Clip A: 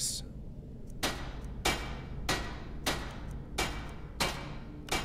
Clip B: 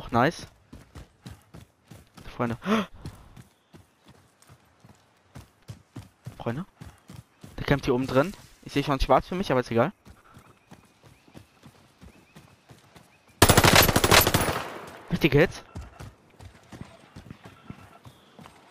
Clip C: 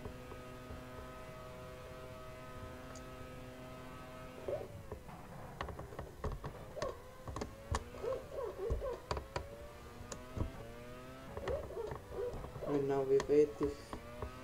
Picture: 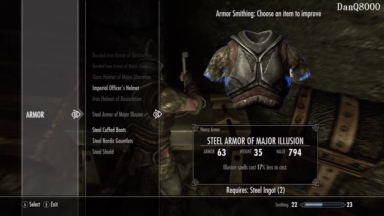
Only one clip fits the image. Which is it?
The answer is A